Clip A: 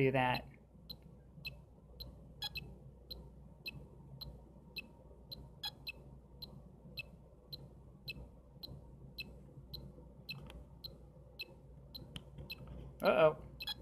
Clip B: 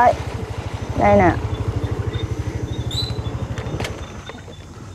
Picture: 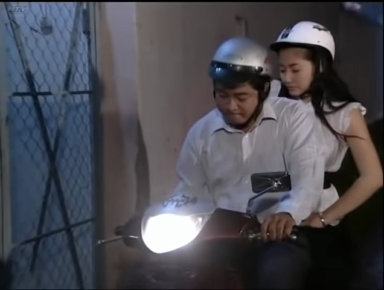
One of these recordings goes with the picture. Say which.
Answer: B